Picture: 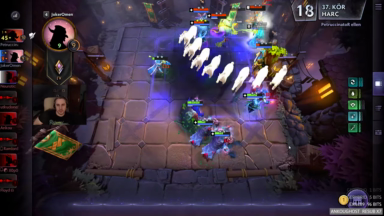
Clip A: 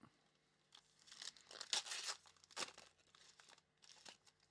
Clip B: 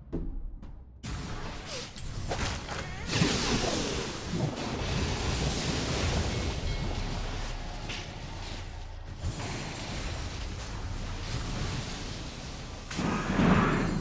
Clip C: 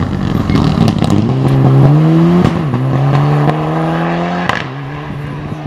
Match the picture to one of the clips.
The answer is B